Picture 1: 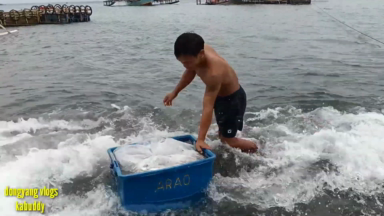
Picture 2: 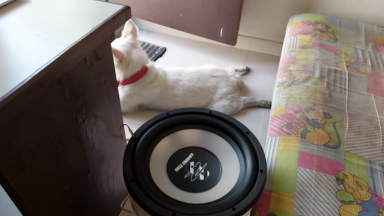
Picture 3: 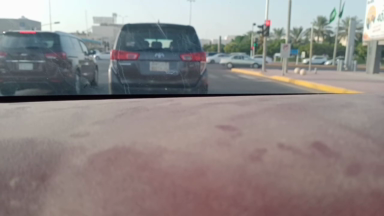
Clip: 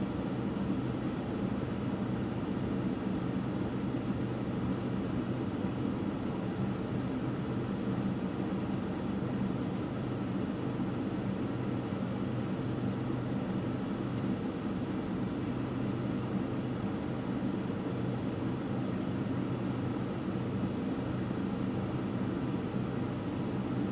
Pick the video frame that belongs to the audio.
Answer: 3